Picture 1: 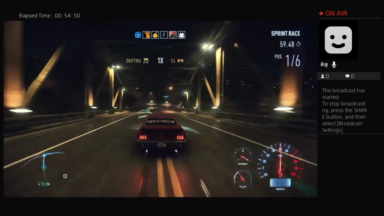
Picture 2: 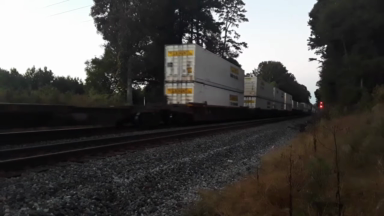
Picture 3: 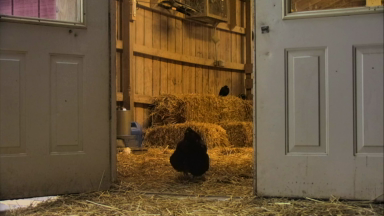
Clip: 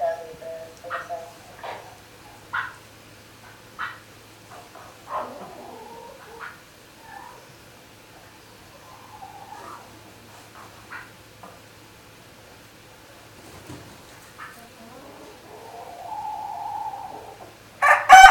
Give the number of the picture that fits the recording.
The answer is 3